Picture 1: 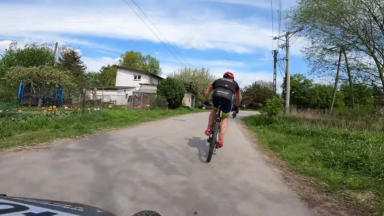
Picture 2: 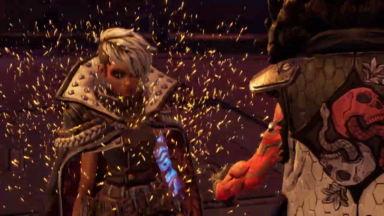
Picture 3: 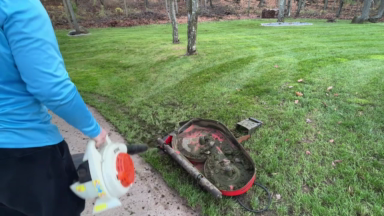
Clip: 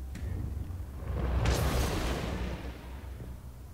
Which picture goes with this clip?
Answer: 2